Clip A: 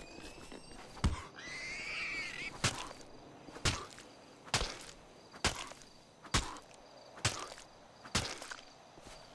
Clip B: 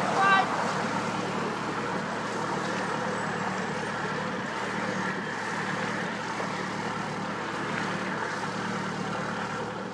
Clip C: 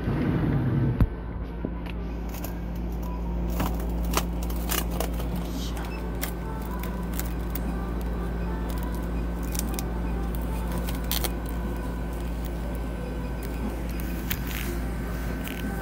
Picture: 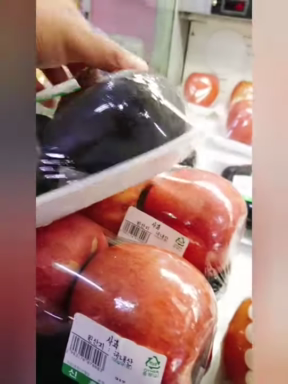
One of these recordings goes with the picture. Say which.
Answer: C